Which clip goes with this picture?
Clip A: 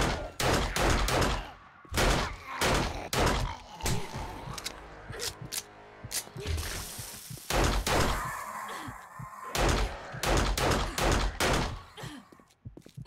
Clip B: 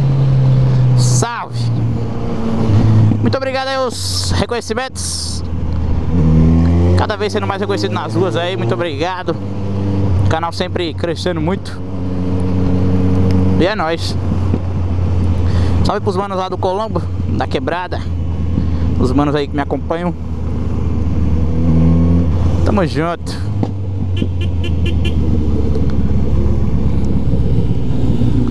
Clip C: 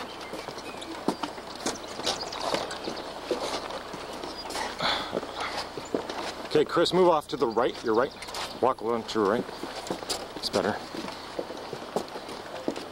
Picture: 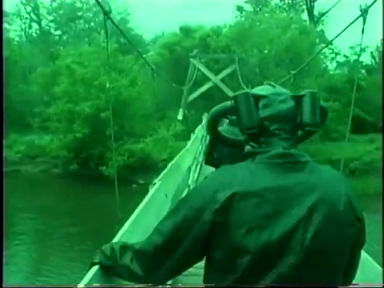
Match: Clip C